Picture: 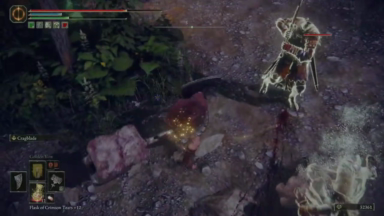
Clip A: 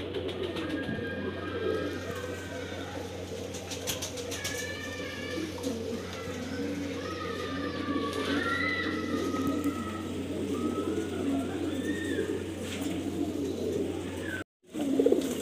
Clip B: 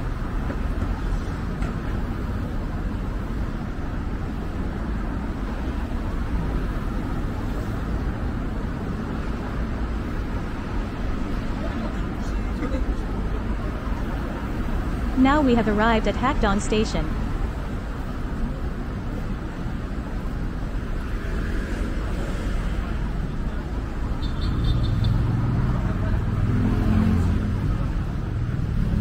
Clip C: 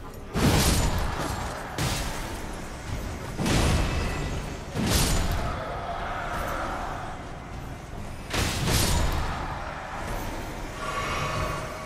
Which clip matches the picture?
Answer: C